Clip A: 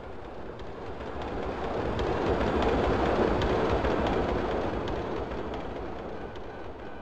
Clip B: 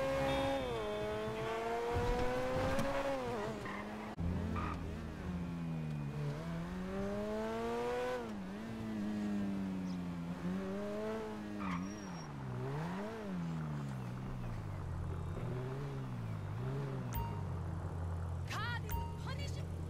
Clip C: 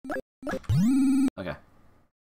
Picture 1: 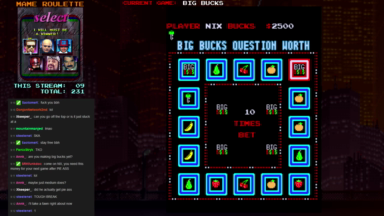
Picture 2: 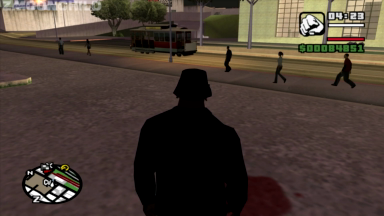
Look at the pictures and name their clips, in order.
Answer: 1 C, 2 A